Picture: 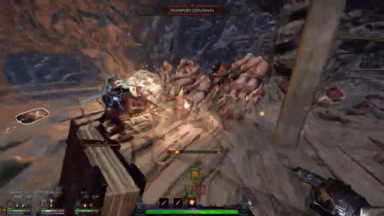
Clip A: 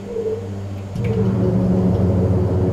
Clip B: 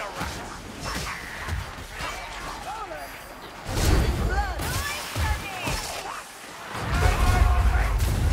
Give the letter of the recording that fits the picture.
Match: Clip B